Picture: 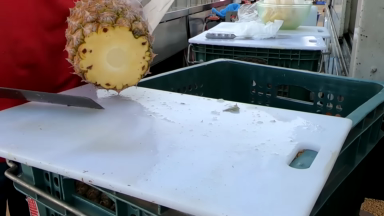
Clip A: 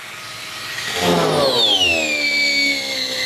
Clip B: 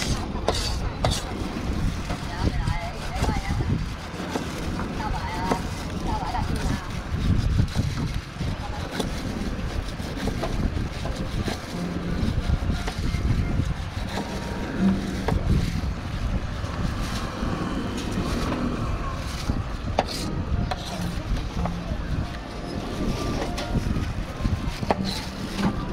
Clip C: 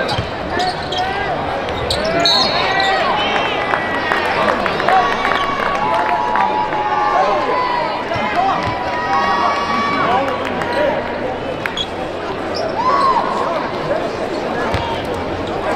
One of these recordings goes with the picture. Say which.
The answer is B